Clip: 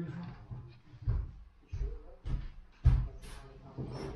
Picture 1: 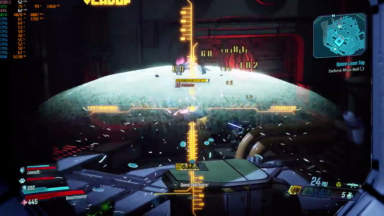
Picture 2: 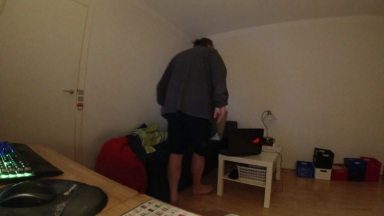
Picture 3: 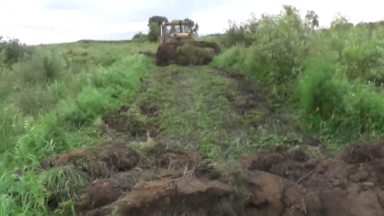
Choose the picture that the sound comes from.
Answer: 2